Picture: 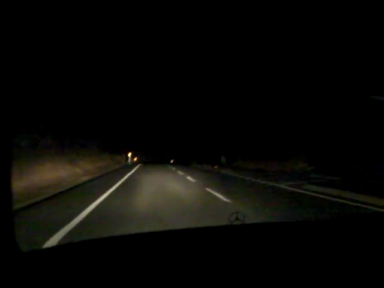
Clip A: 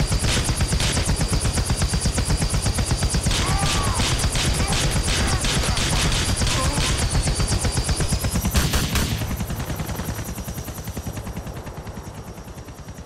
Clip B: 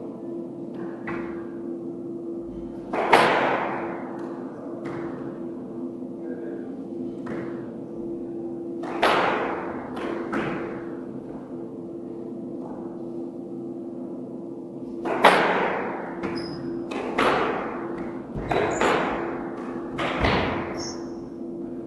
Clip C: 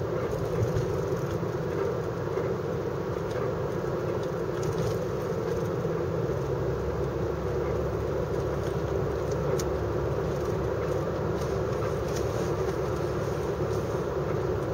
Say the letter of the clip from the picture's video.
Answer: C